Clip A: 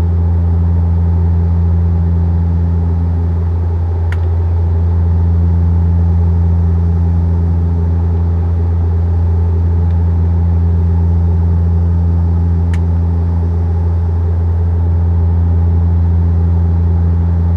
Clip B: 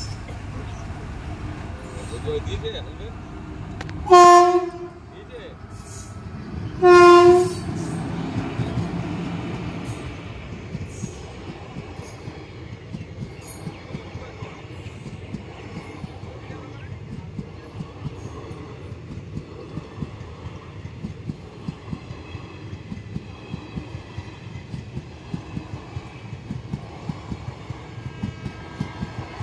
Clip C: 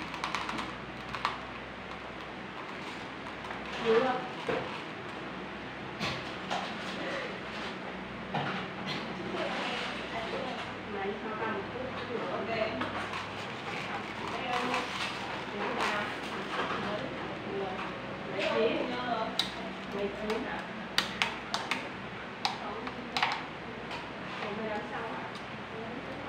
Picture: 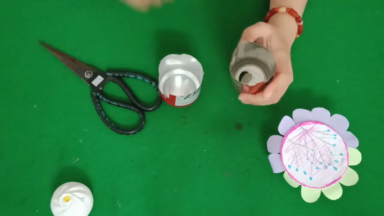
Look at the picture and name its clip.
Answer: C